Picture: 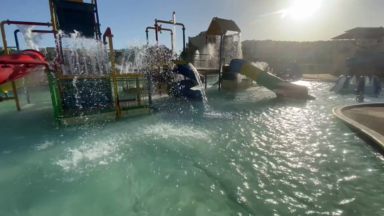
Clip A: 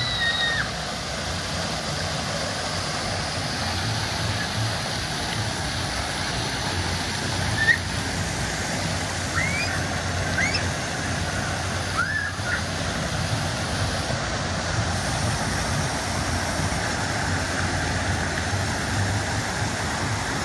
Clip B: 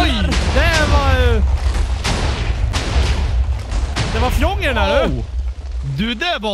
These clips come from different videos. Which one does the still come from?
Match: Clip A